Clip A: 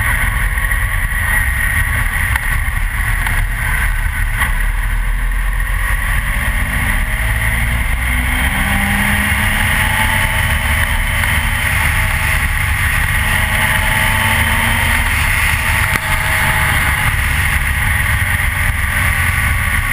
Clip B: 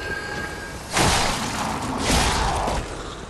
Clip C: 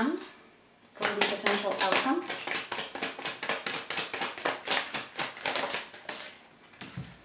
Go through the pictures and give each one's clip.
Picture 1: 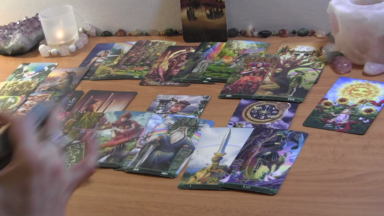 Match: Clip C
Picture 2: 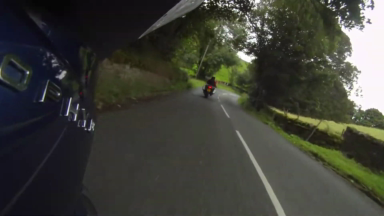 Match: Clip A